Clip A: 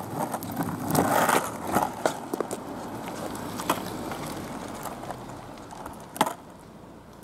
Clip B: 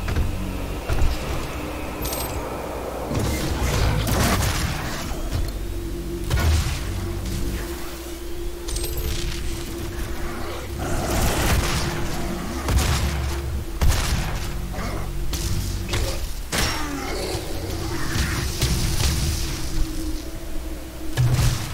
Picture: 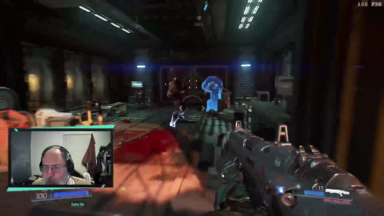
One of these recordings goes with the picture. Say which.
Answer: B